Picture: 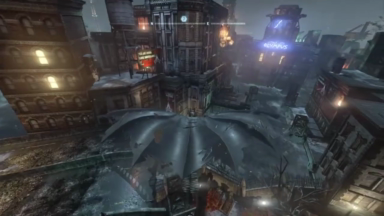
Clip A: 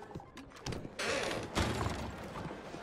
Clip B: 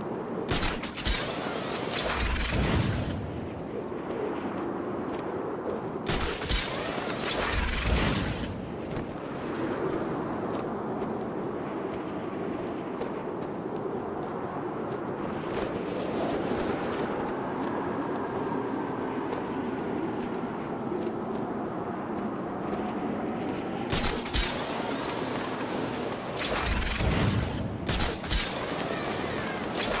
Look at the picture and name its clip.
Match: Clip B